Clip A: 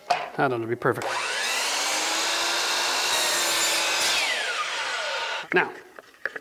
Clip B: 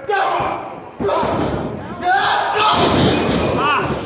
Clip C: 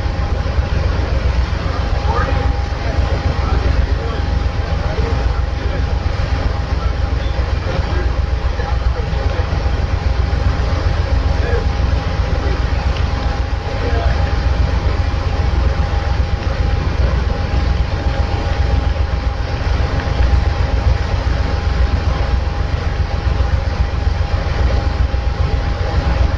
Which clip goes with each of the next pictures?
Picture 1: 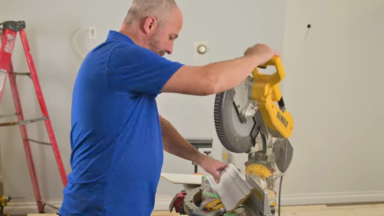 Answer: A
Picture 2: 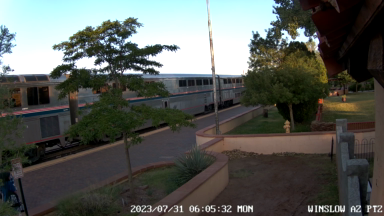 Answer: C